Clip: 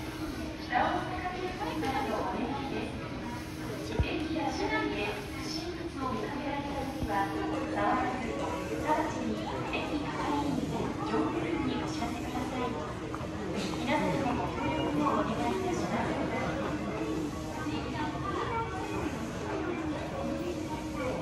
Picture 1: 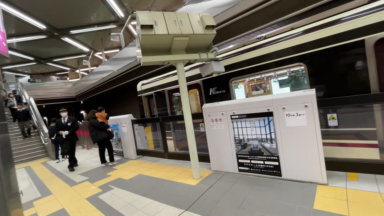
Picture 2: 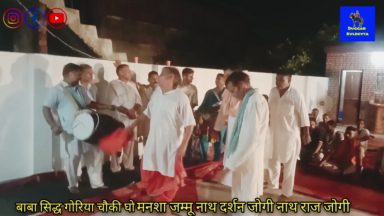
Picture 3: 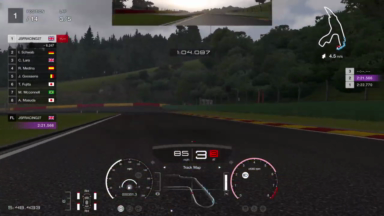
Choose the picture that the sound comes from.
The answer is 1